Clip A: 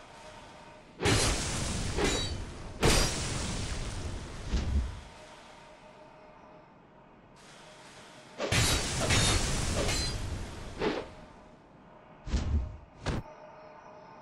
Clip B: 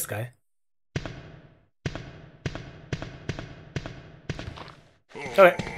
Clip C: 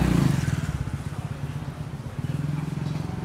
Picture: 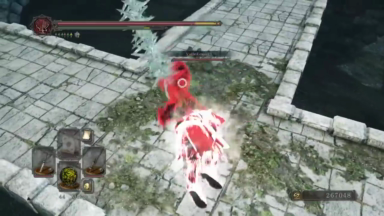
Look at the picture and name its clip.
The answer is A